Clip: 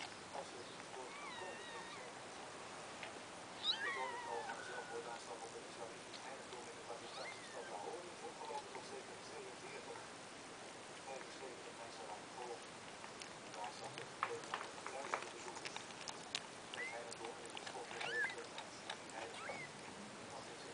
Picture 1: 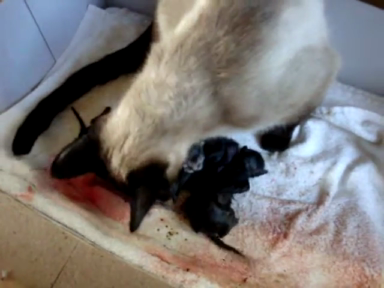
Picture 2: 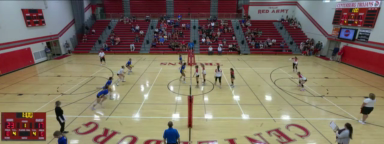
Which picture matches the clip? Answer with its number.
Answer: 1